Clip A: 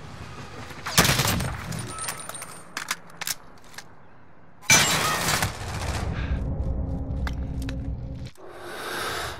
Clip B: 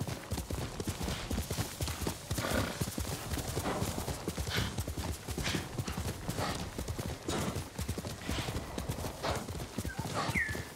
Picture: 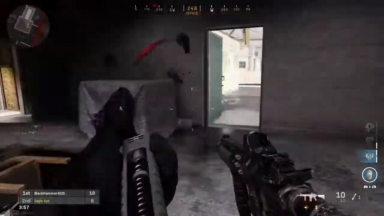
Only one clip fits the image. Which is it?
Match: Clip A